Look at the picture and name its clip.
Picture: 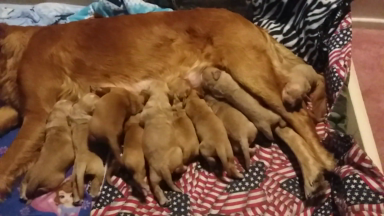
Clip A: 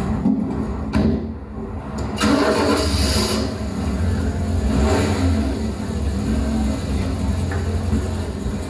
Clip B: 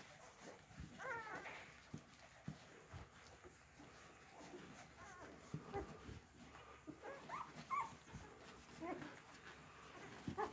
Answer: B